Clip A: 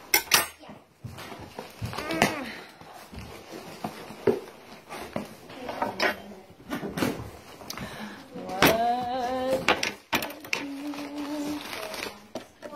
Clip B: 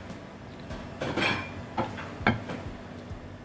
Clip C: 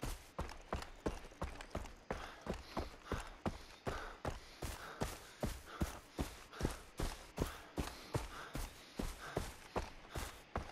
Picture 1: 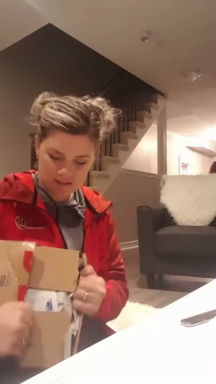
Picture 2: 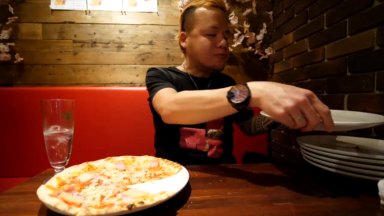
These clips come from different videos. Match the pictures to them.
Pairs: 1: A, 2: B